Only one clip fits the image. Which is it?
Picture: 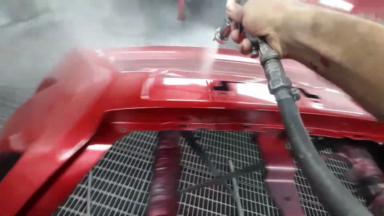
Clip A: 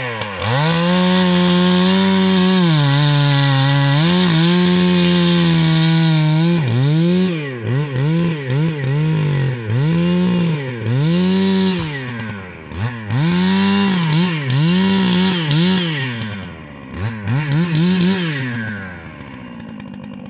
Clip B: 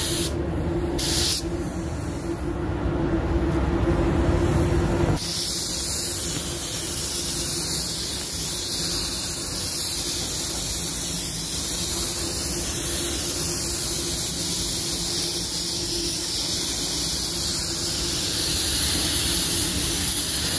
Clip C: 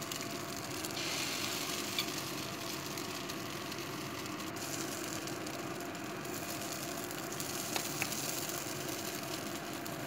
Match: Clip B